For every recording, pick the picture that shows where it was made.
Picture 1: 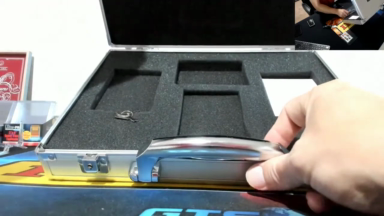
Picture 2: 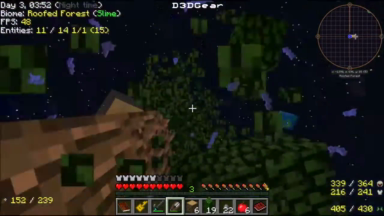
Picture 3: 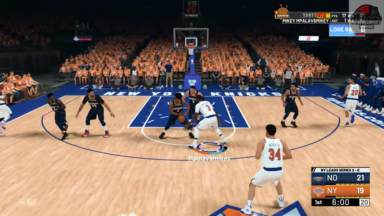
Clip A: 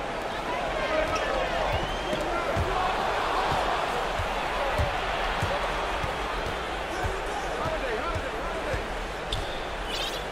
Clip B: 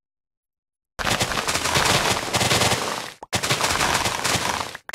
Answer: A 3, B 2